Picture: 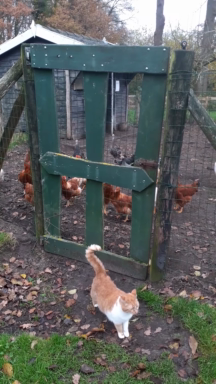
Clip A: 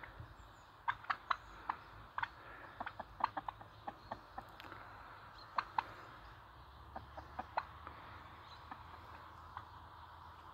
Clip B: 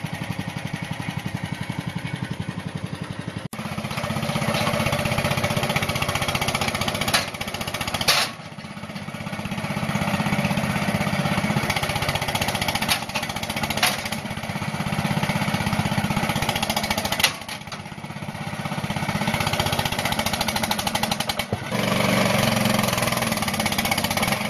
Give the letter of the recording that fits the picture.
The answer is A